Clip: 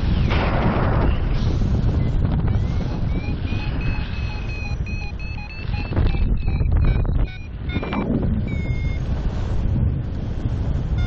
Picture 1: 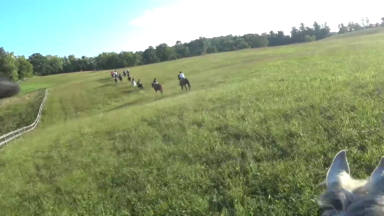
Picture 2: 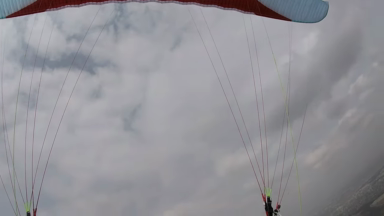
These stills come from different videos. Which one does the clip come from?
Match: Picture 2